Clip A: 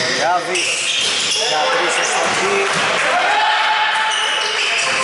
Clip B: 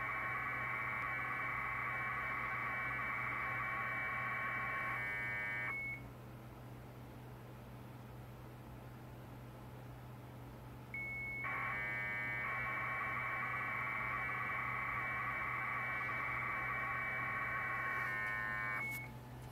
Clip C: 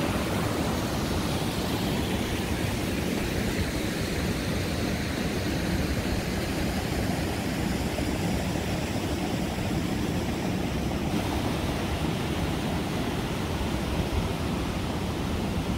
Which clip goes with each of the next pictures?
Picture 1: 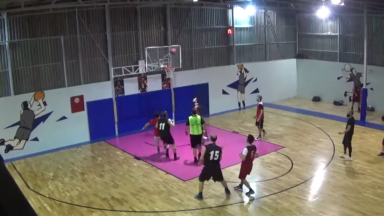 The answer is A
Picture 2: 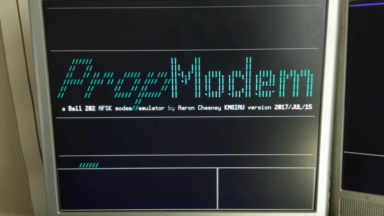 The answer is B